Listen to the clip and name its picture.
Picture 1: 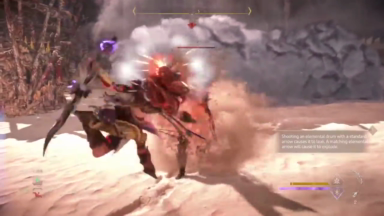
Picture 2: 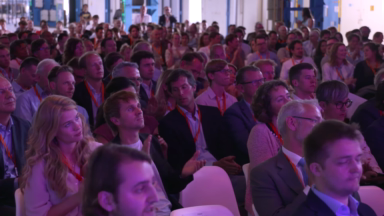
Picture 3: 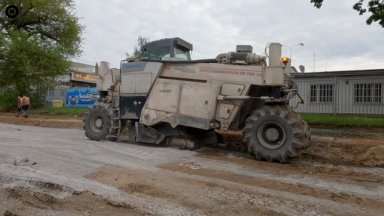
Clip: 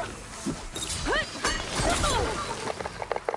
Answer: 1